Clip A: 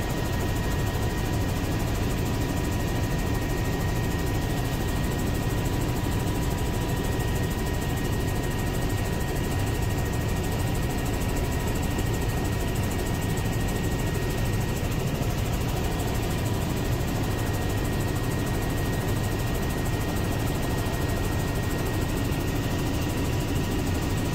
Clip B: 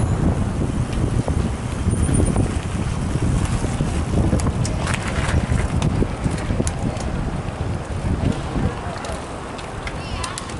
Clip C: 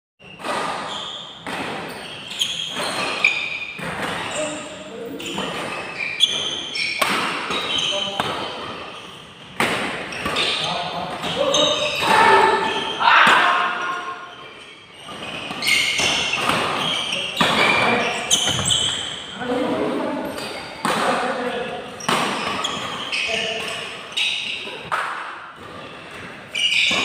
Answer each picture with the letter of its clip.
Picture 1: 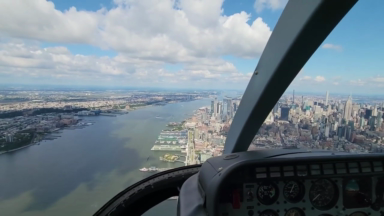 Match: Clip A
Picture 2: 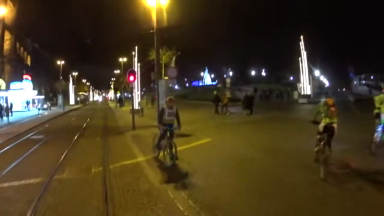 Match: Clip B